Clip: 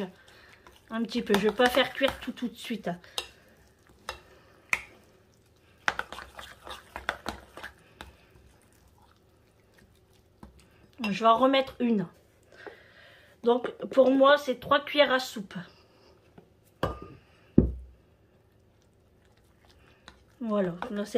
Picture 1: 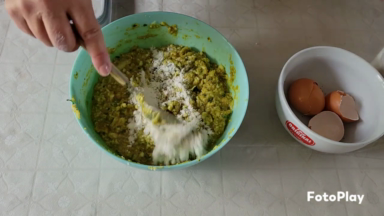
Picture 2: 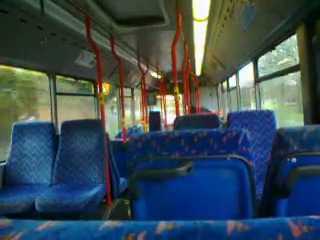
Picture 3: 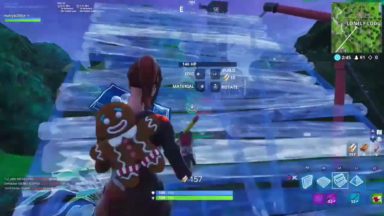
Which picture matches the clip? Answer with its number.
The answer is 1